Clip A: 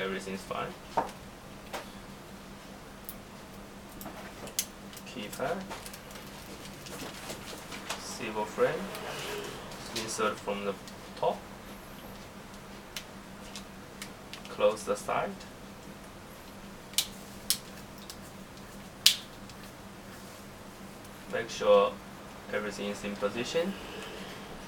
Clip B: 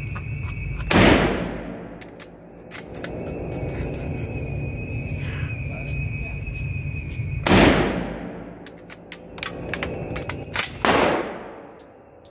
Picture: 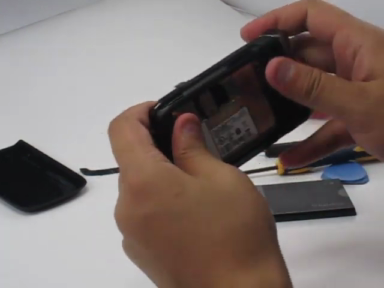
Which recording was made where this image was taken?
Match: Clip A